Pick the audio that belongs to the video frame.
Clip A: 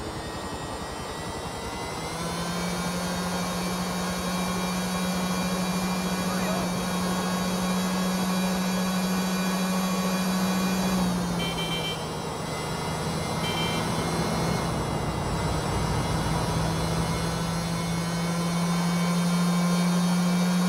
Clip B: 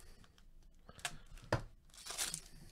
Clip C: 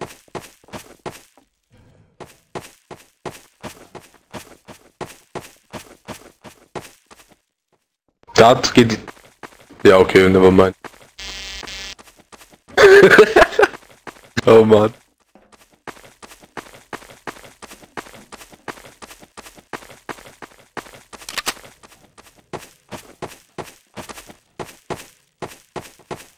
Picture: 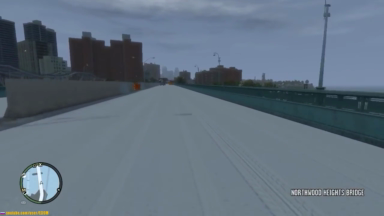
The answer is A